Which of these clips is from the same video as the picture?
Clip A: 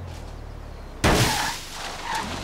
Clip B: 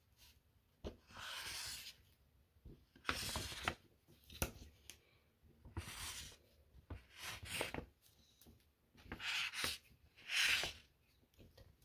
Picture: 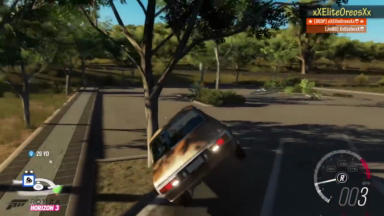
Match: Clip A